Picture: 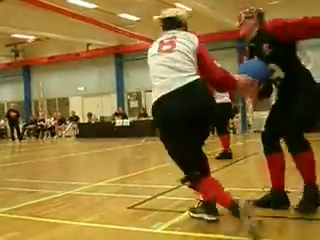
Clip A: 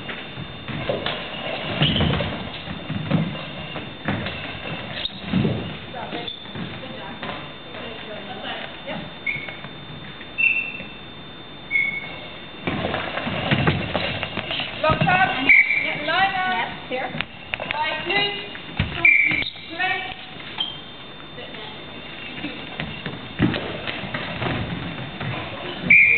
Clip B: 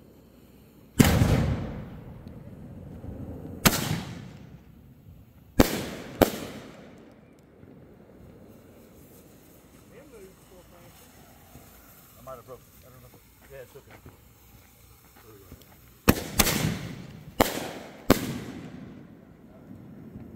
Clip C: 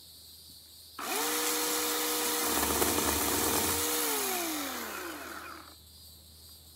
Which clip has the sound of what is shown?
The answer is A